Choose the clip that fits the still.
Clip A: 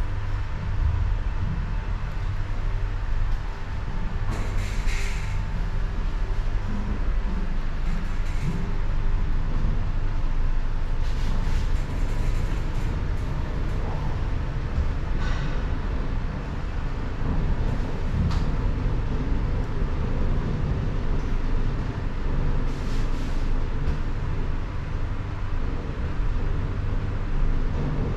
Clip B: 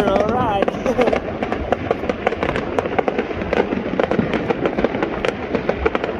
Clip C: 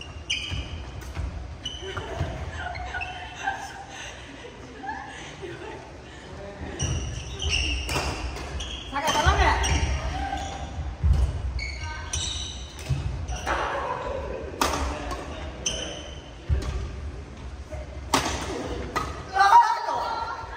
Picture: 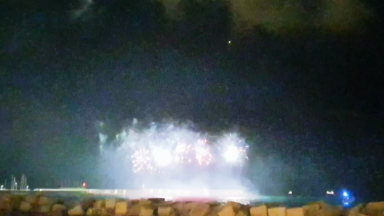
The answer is B